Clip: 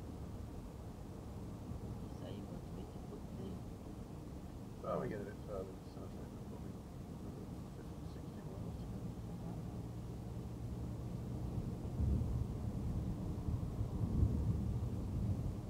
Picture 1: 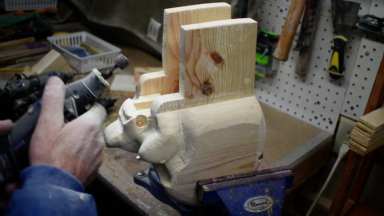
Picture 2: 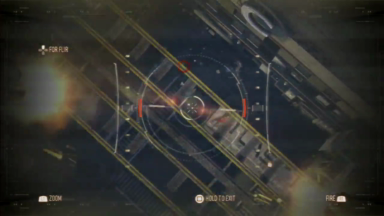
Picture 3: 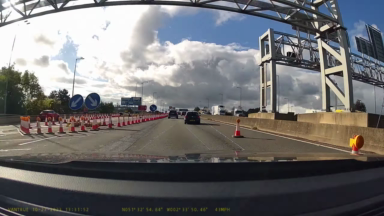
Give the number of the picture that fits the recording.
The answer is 3